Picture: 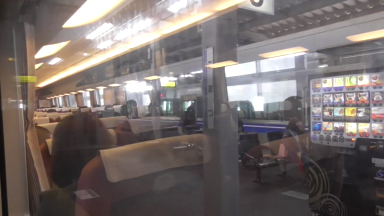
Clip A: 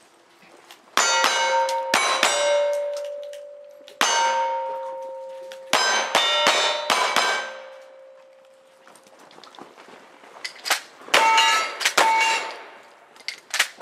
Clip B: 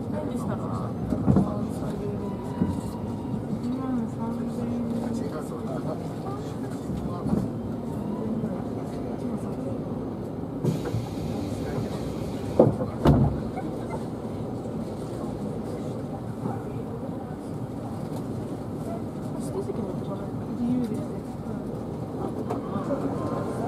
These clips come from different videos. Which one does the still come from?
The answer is B